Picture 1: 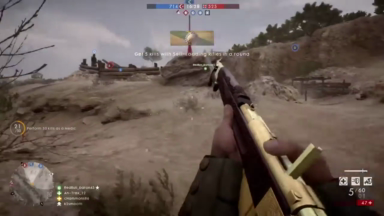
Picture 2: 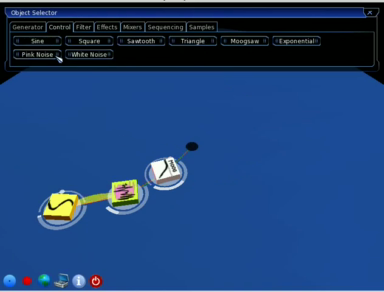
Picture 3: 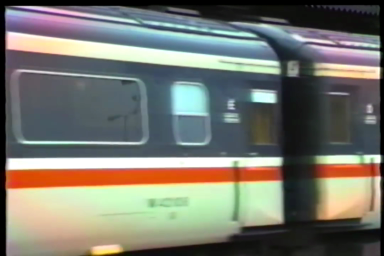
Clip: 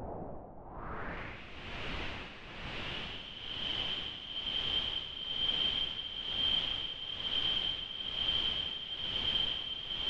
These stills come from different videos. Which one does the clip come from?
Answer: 2